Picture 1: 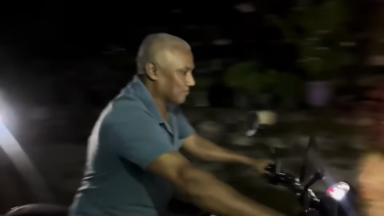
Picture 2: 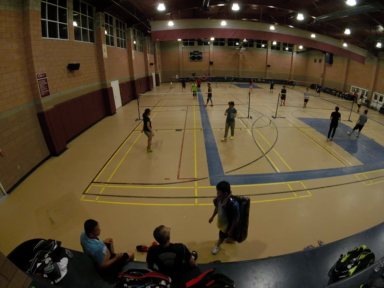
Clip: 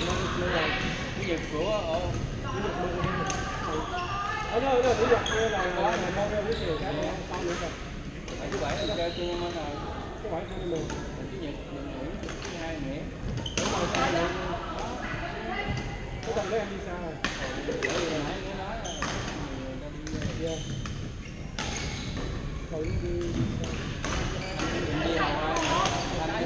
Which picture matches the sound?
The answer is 2